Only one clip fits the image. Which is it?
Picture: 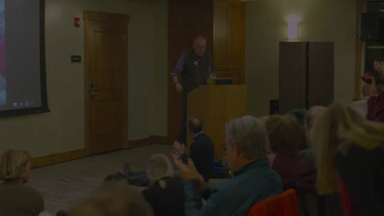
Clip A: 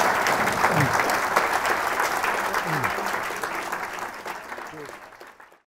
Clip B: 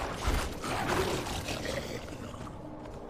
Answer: A